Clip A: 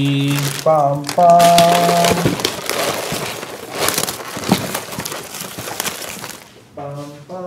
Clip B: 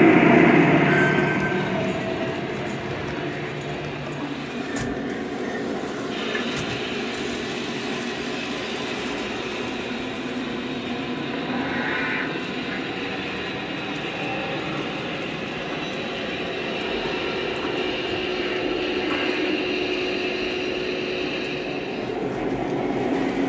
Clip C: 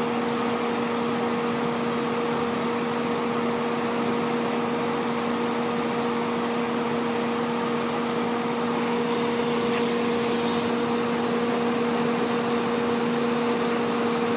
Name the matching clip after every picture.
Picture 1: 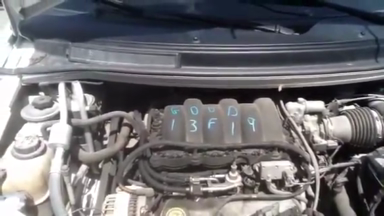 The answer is C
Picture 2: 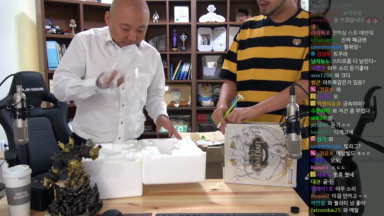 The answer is A